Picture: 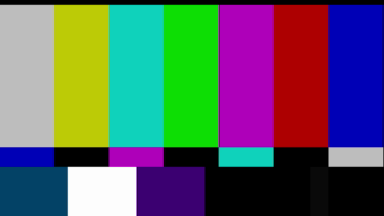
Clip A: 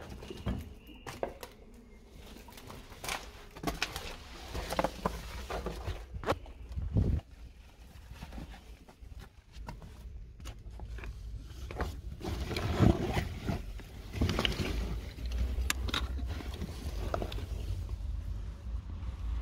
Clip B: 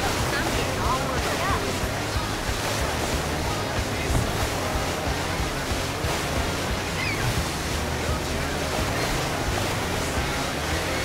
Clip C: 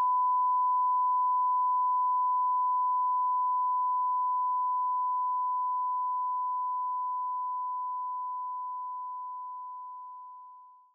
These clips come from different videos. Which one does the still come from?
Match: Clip C